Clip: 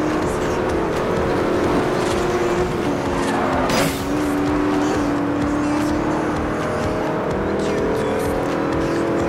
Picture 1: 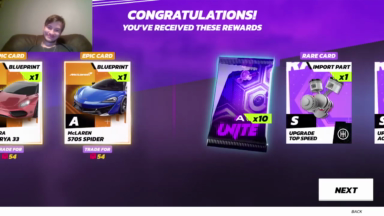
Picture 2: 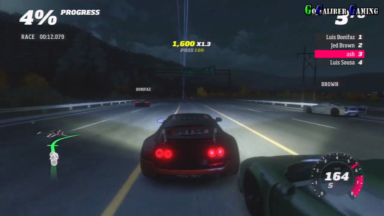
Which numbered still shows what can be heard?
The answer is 2